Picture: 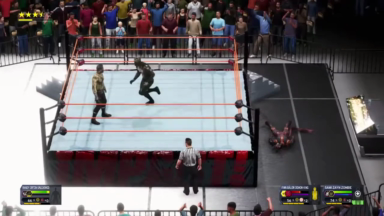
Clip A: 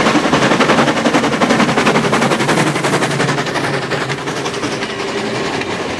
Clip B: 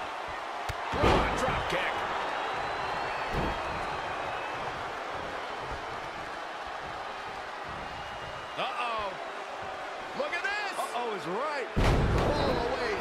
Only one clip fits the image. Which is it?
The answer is B